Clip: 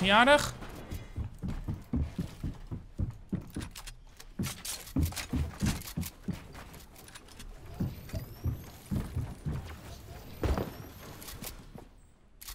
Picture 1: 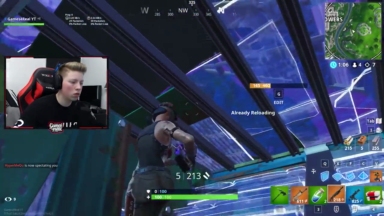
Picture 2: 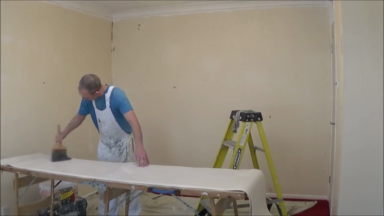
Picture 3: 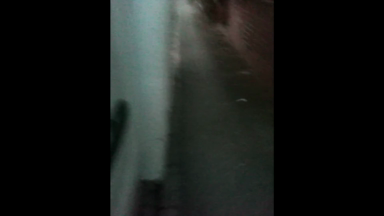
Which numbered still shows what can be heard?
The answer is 1